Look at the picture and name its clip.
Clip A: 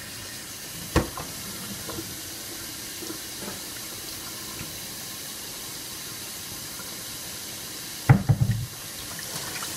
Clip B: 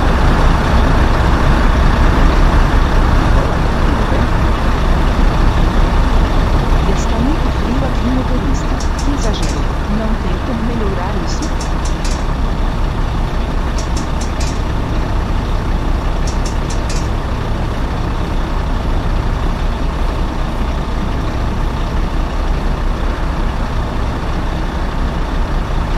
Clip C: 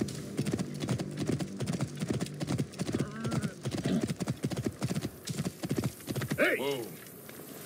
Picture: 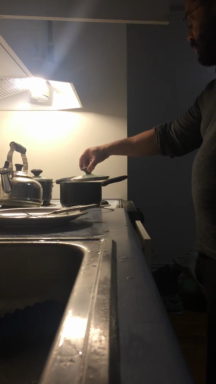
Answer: A